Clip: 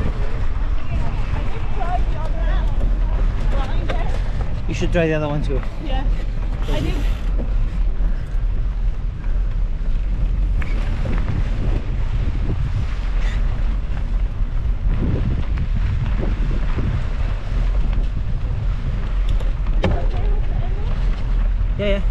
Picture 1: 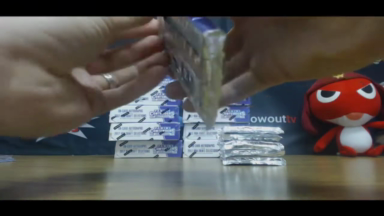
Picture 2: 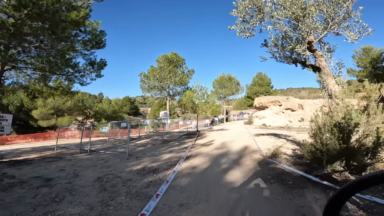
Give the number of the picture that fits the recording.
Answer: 2